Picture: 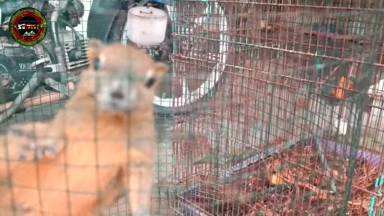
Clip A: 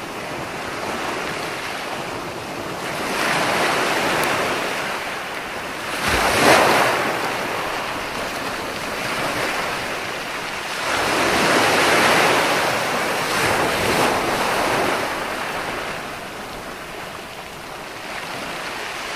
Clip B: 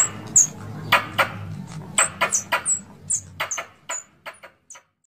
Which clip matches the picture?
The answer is B